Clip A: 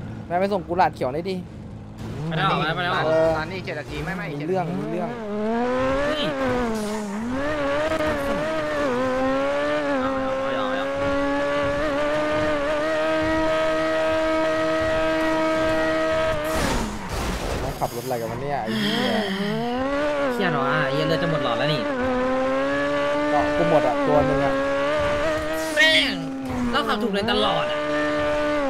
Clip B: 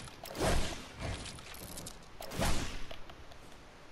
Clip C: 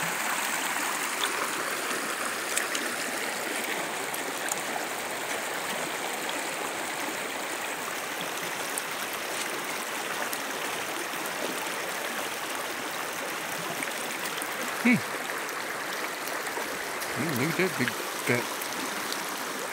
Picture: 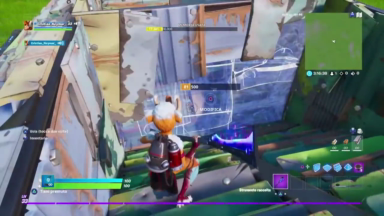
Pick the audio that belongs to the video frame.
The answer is B